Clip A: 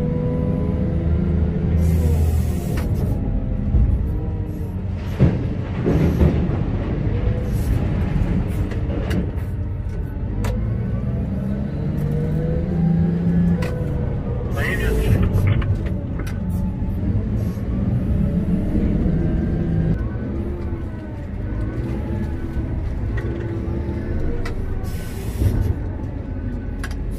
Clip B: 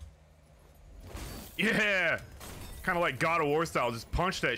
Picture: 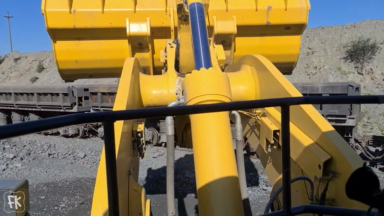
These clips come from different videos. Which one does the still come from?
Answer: A